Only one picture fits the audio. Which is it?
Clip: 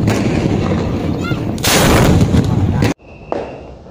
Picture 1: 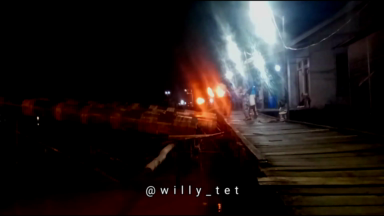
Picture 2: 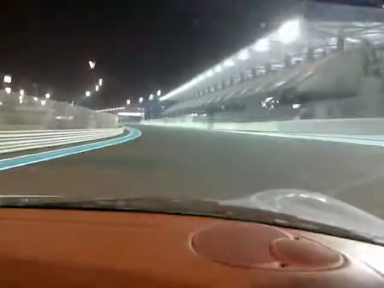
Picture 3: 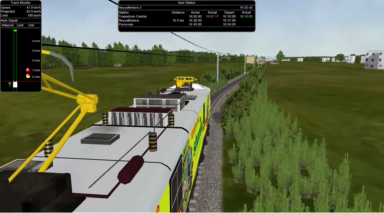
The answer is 1